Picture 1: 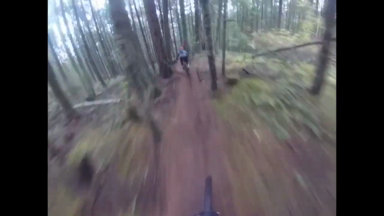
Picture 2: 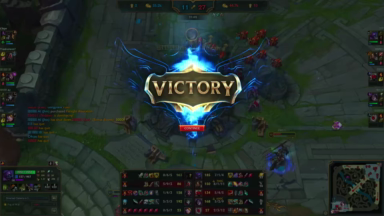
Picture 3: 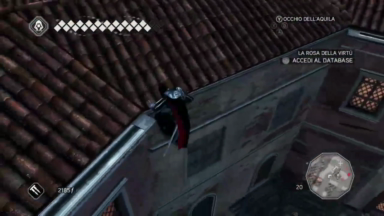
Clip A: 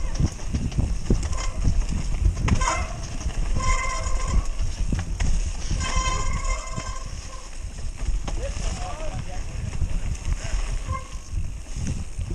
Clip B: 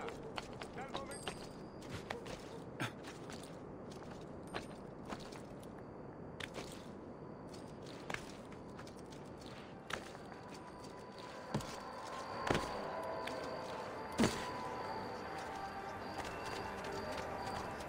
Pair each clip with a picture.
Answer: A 1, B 3